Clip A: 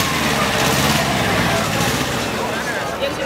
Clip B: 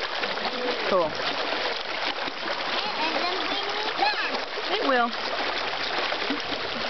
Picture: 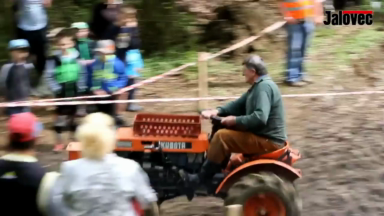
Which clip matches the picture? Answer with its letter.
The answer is A